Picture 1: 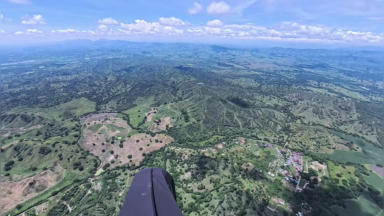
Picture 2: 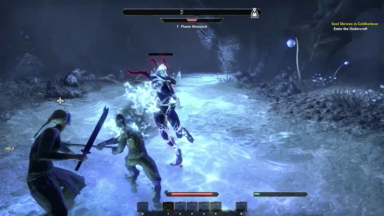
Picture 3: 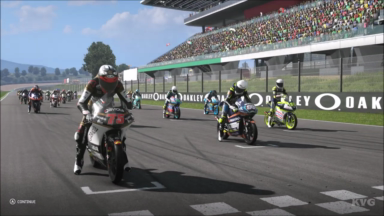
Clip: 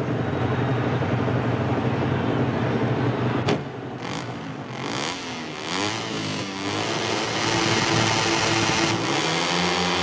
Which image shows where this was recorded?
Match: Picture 3